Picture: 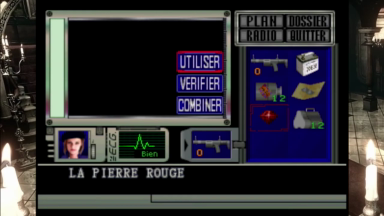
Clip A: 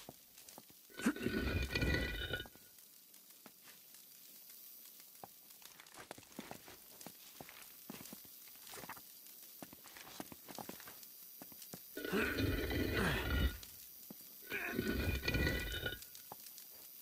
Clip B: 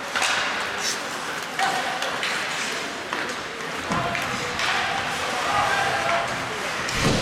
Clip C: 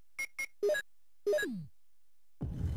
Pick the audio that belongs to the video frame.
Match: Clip C